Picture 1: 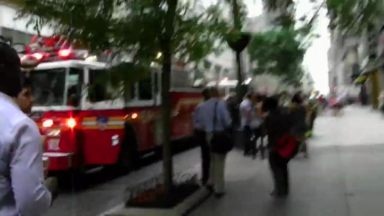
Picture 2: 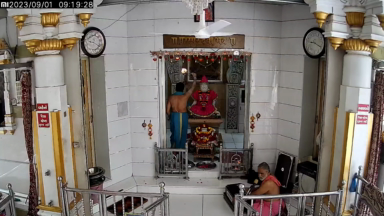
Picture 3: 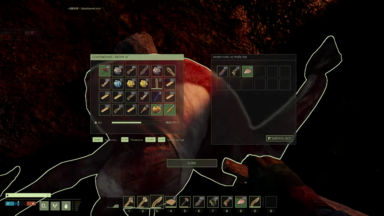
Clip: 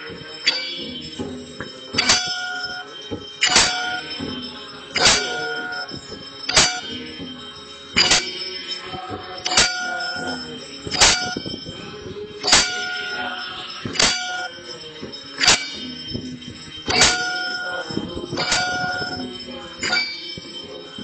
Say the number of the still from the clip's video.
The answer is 2